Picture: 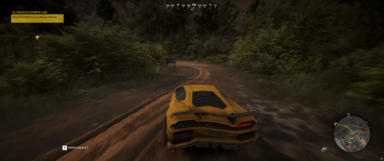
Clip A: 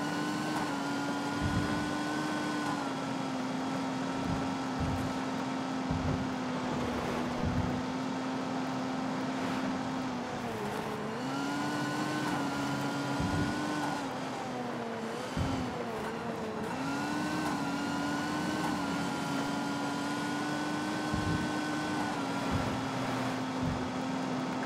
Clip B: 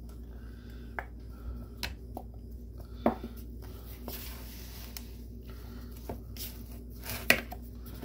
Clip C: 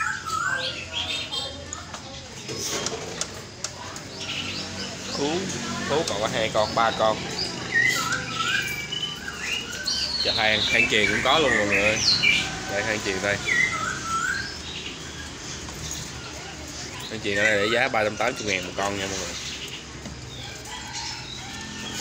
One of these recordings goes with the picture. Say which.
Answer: A